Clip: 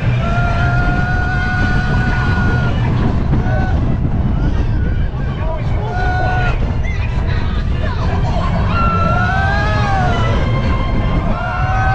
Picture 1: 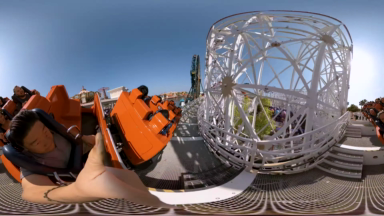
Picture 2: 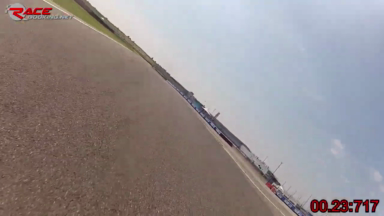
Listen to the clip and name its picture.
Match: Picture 1